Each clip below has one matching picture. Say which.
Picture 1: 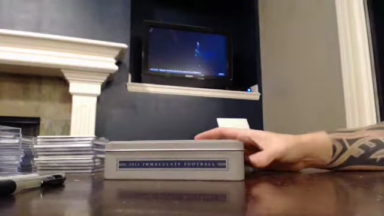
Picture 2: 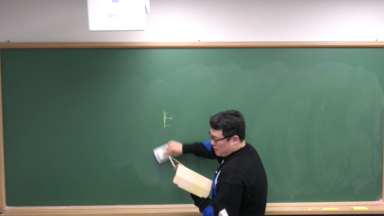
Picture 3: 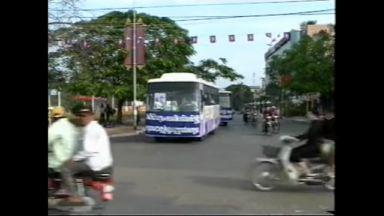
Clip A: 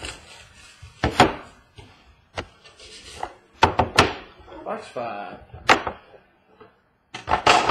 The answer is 1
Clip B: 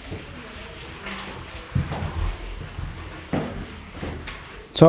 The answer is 2